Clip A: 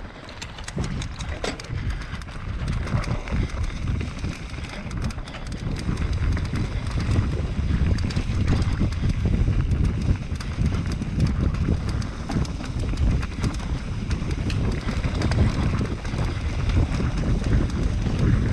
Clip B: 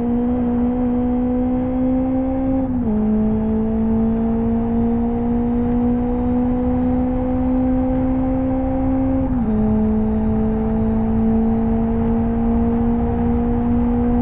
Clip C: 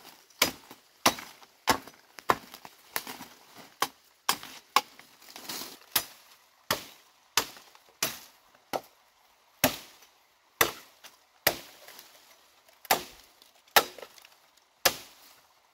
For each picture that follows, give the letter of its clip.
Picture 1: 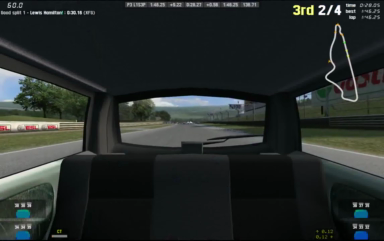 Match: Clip B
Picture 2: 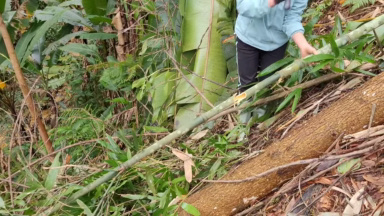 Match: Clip C